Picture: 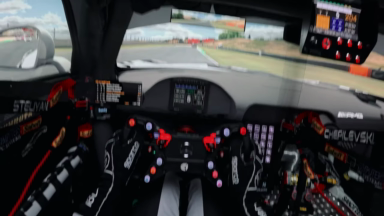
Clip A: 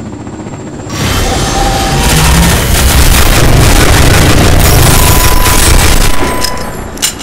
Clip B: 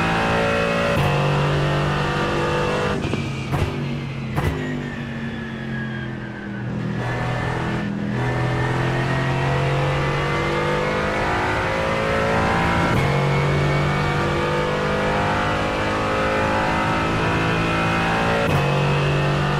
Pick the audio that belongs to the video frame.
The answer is B